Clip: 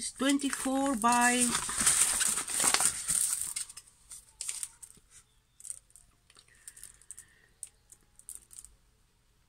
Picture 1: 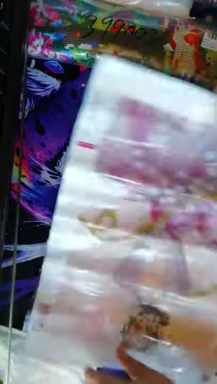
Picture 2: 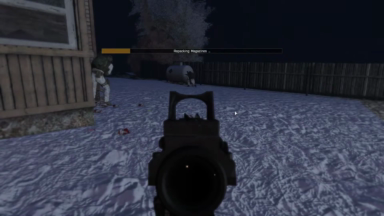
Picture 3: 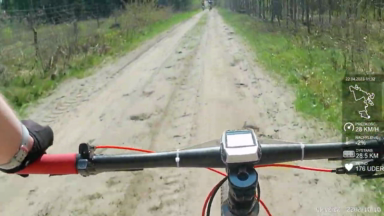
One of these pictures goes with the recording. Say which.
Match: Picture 1